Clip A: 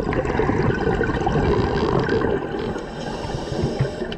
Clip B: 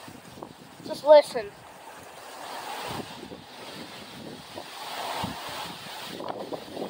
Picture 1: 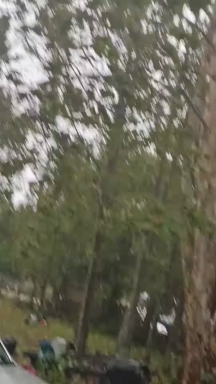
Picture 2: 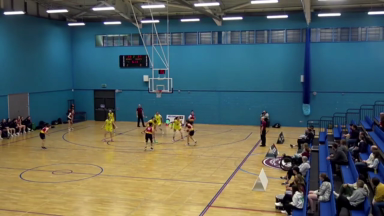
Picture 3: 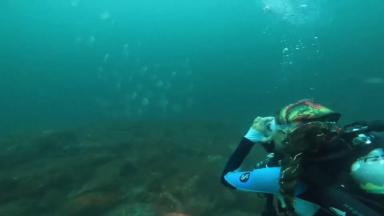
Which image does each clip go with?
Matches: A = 3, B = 1